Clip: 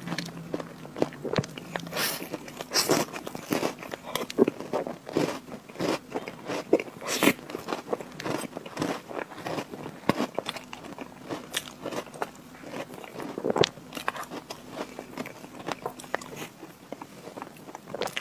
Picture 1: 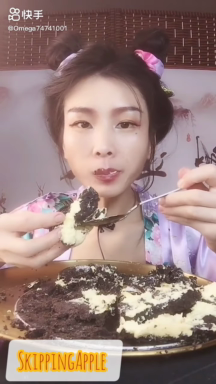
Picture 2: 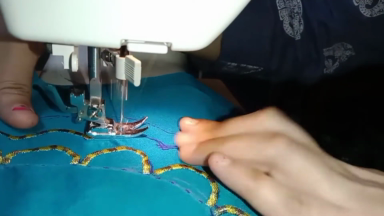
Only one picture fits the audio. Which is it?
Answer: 1